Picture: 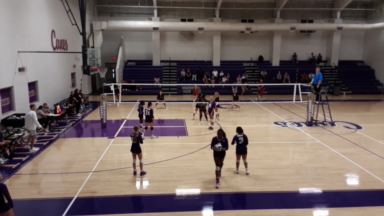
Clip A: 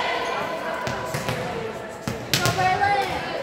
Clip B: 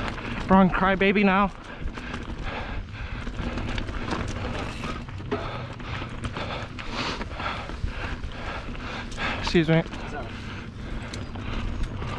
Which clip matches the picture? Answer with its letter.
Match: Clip A